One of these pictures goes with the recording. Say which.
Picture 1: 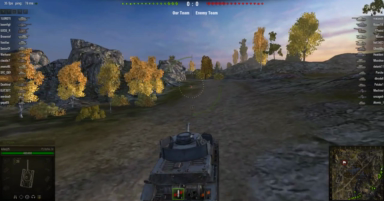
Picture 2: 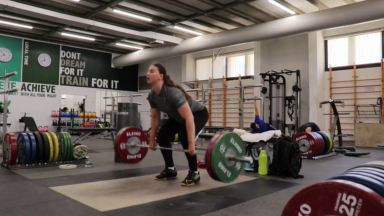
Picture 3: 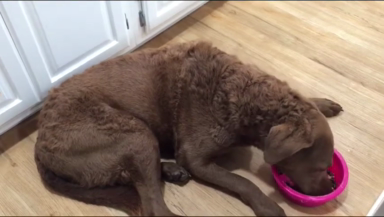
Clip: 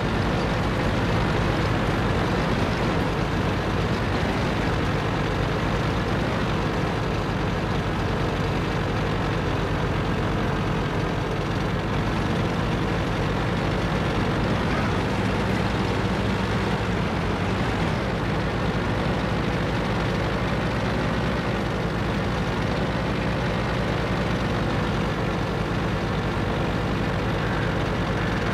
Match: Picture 1